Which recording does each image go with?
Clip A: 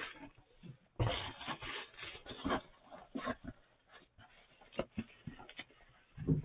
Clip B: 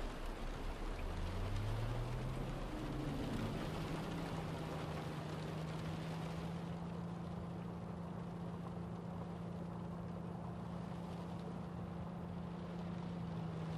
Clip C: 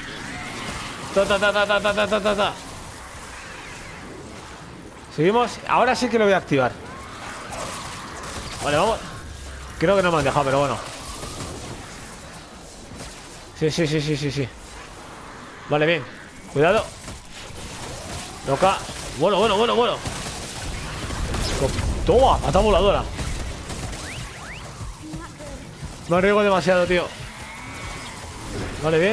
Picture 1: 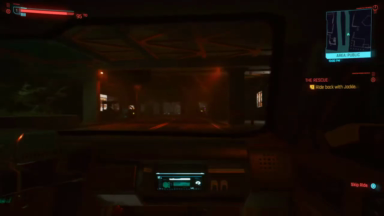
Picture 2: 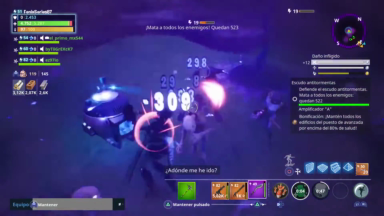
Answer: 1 B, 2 C